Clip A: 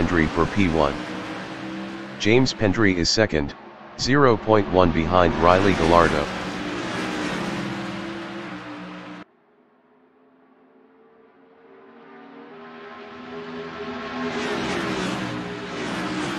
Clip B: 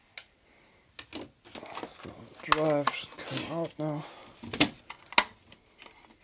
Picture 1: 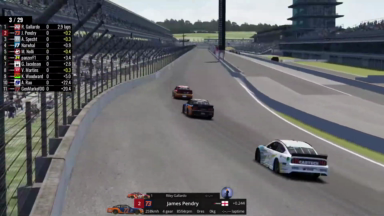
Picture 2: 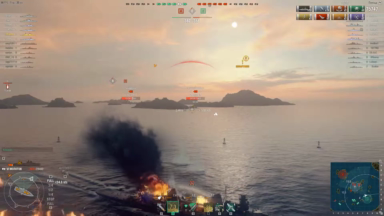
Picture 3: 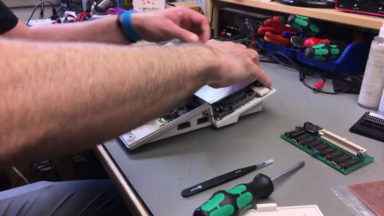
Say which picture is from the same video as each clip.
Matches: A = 1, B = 3